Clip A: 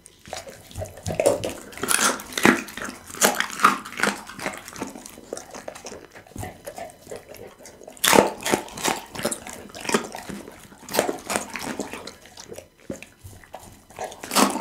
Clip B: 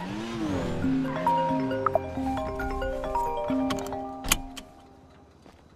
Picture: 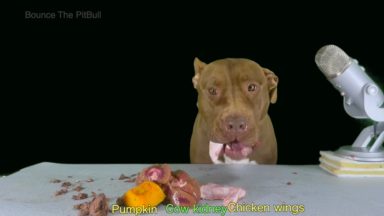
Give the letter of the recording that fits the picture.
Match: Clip A